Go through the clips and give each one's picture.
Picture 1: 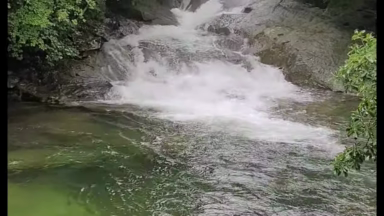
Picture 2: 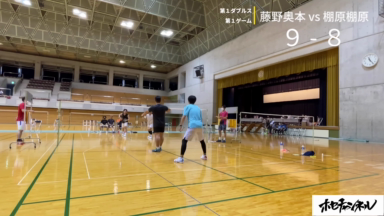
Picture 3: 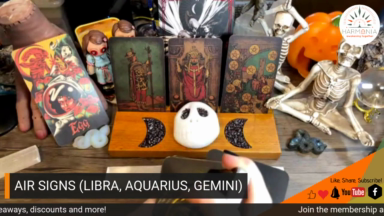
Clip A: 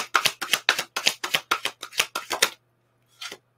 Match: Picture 3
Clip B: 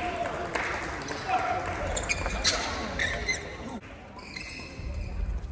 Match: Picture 2